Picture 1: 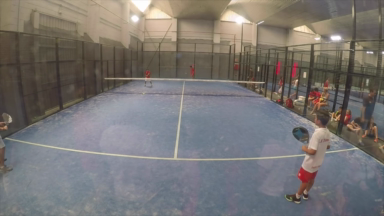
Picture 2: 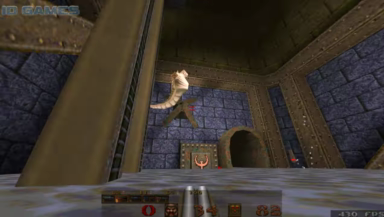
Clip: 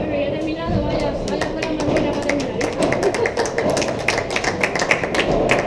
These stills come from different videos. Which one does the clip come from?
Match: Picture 1